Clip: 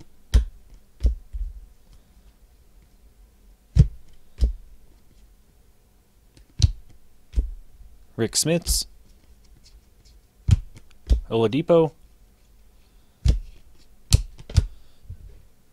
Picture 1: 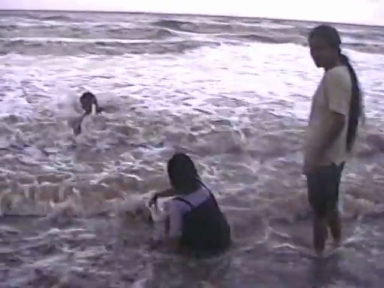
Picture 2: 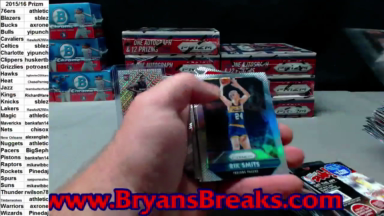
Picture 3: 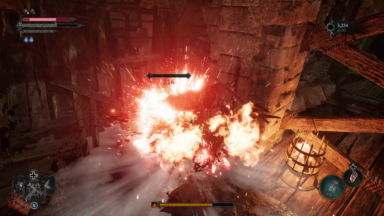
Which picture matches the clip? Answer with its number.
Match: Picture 2